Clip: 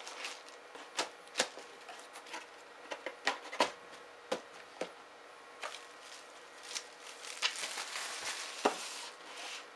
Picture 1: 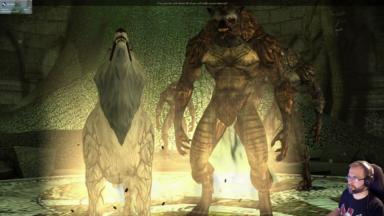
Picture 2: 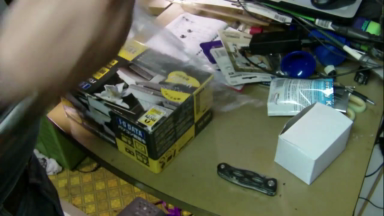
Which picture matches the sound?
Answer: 2